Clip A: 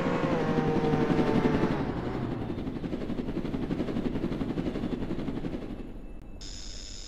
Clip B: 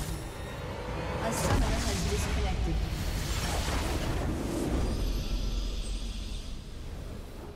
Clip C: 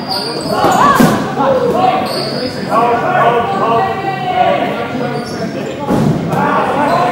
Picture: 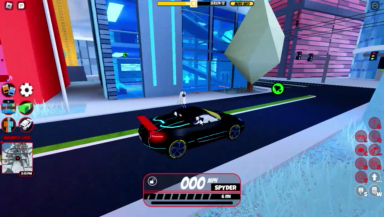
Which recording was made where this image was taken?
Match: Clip A